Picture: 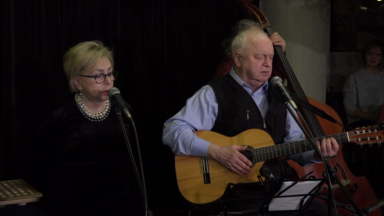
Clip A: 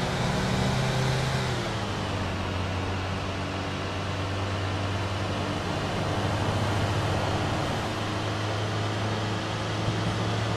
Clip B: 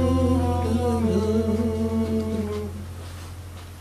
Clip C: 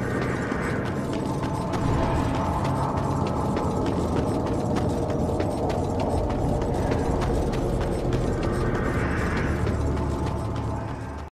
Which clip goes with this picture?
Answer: B